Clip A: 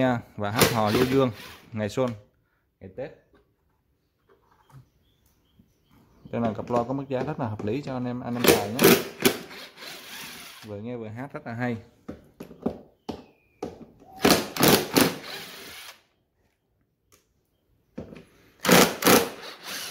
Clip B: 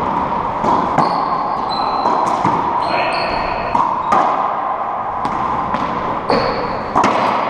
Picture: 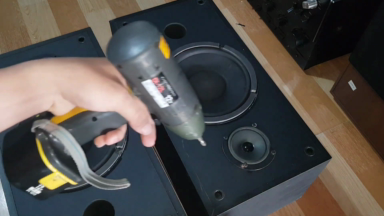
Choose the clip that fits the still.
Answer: A